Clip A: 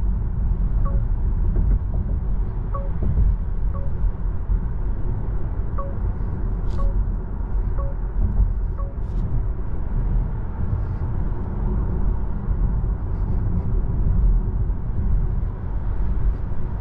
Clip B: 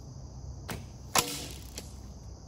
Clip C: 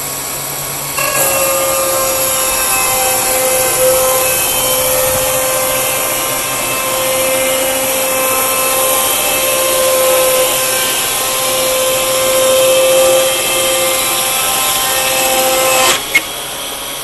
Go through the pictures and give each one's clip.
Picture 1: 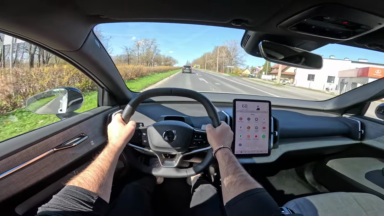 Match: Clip A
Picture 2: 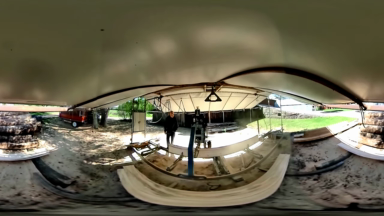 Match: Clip C